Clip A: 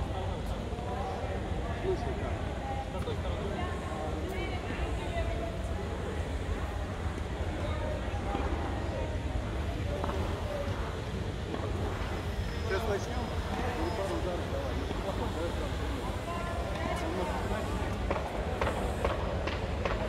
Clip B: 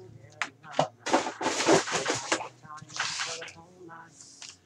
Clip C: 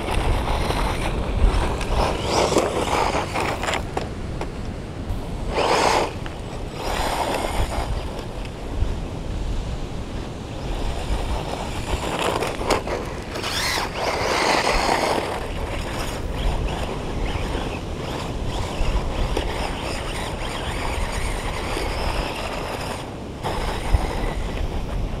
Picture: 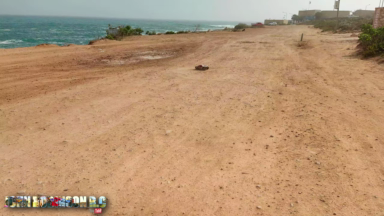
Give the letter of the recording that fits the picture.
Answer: C